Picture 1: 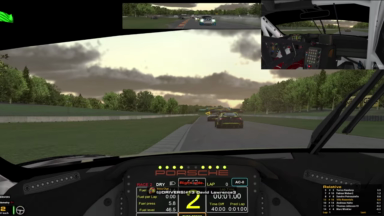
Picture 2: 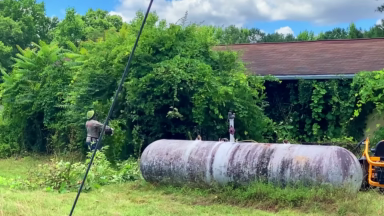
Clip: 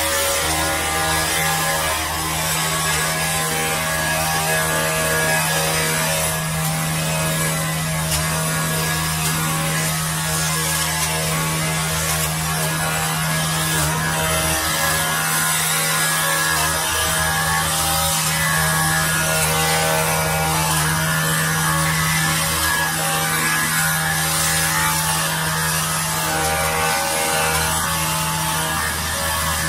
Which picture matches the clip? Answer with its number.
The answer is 2